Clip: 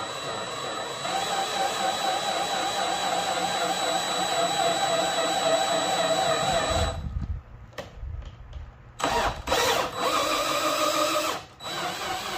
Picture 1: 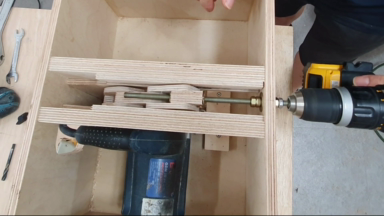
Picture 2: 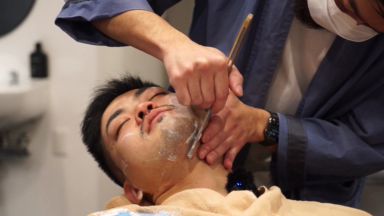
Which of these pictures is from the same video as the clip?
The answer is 1